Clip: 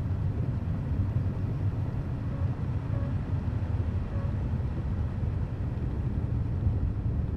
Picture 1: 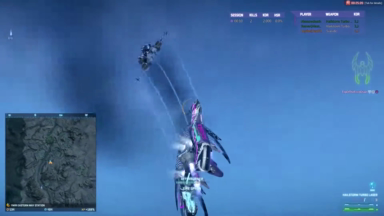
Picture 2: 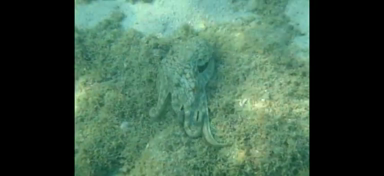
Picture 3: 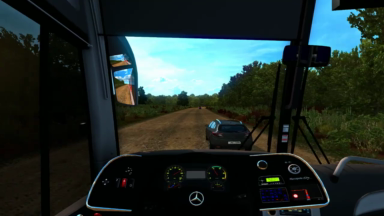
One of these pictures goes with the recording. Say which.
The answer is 3